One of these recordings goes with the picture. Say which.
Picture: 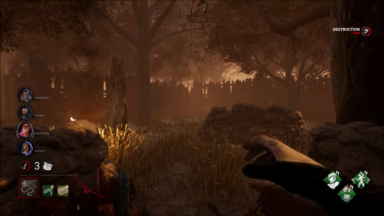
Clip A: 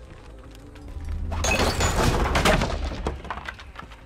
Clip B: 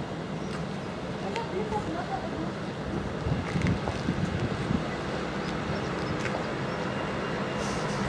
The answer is A